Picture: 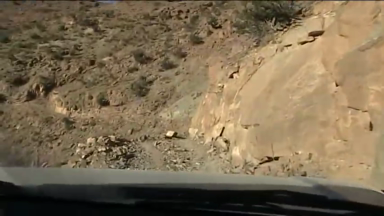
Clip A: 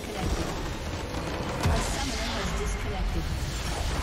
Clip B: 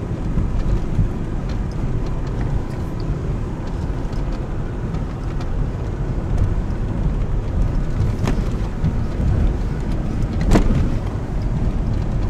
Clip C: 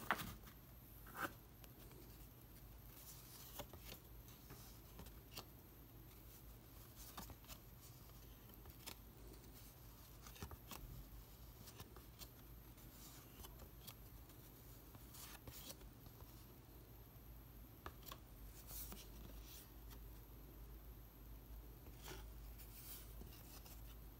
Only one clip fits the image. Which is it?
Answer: B